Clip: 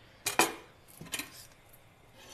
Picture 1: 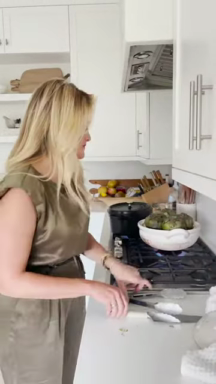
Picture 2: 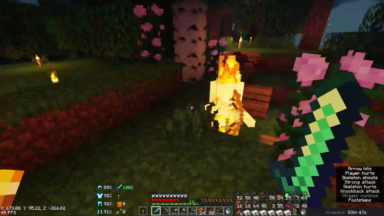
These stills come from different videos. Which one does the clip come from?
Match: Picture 1